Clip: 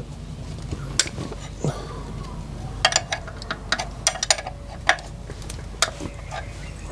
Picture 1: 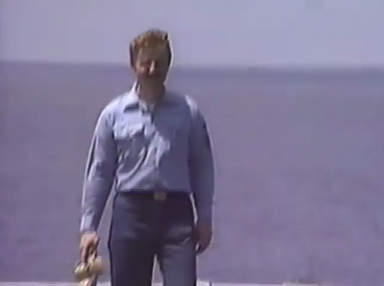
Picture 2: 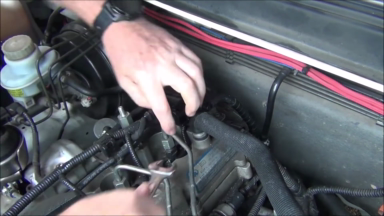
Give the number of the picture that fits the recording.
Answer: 2